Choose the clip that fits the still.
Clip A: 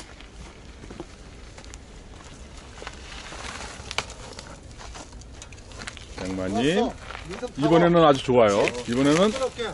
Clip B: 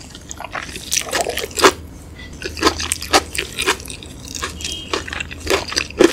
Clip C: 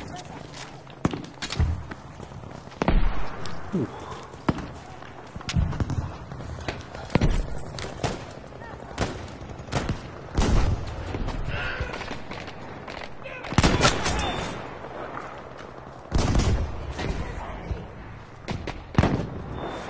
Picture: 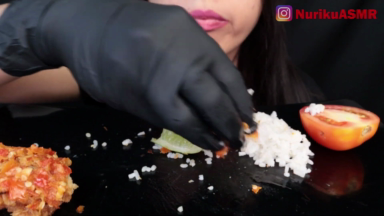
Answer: B